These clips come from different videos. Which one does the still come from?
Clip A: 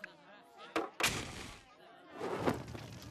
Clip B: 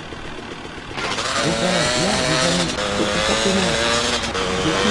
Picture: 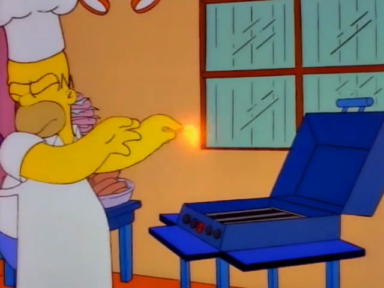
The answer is A